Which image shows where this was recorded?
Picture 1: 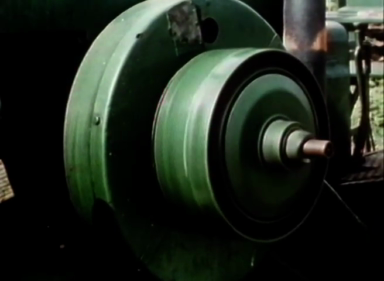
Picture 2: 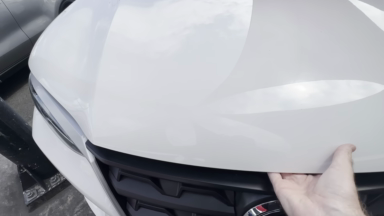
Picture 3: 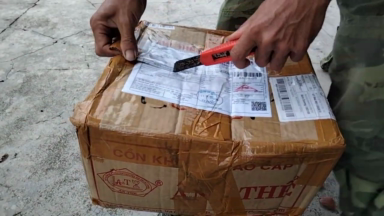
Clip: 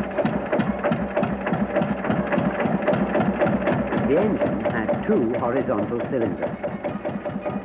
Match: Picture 1